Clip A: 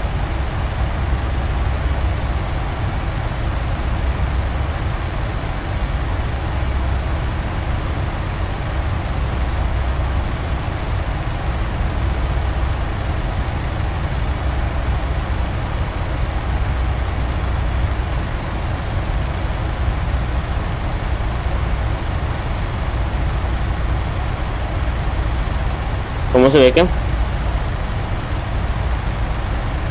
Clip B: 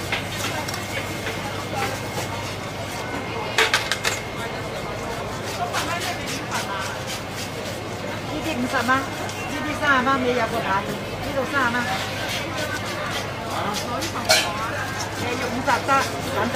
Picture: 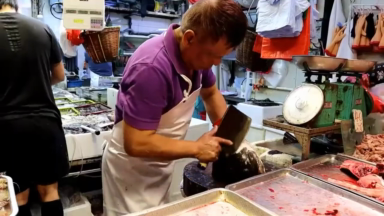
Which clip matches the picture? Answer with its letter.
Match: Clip B